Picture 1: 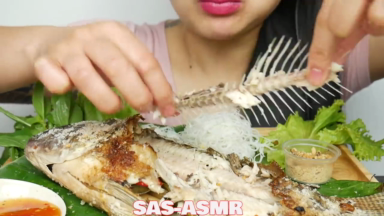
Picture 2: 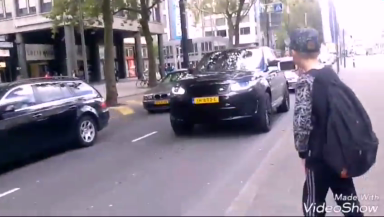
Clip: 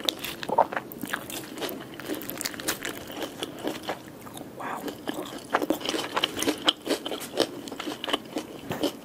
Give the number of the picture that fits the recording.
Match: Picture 1